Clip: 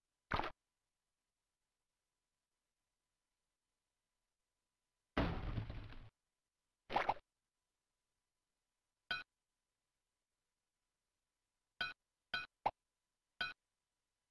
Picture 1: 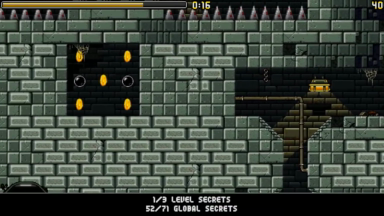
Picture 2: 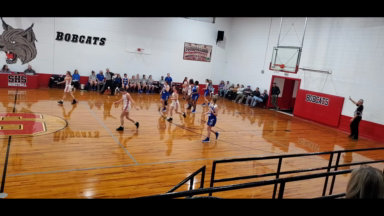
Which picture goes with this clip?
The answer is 1